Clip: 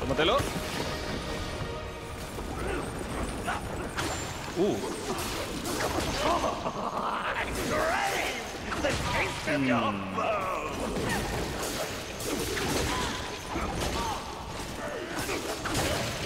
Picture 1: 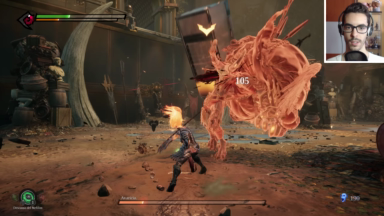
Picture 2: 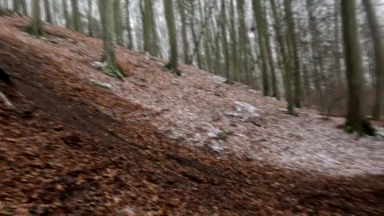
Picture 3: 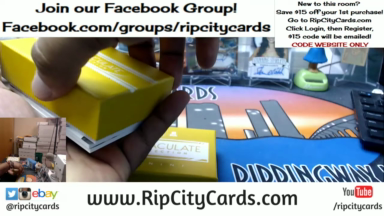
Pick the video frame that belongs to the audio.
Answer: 1